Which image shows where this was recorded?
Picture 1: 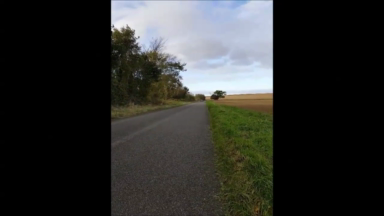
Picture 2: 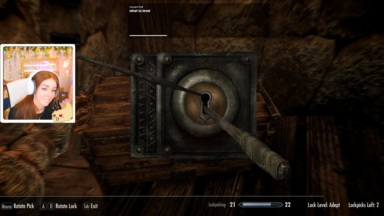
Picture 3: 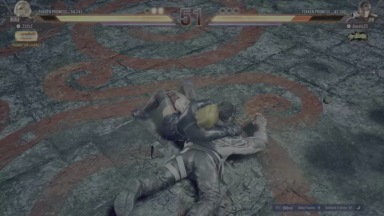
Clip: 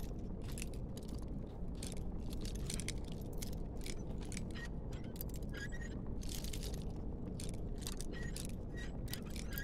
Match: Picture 2